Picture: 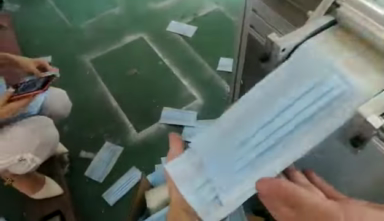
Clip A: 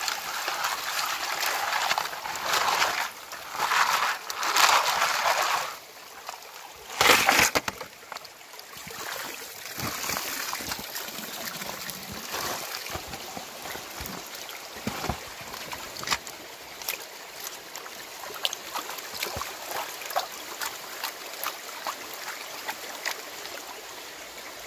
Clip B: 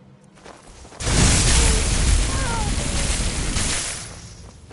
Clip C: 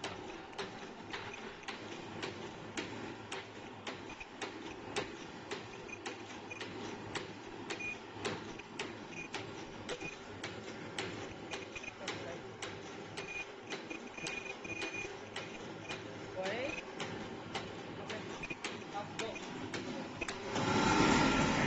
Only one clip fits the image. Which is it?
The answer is C